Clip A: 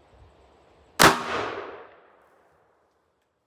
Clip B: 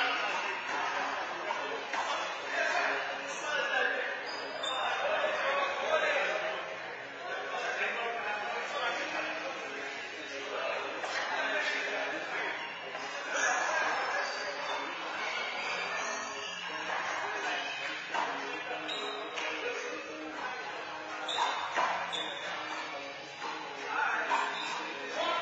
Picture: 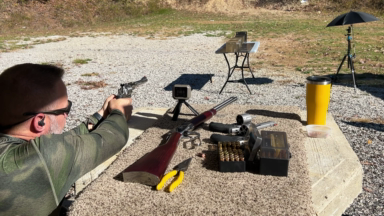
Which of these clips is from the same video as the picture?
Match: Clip A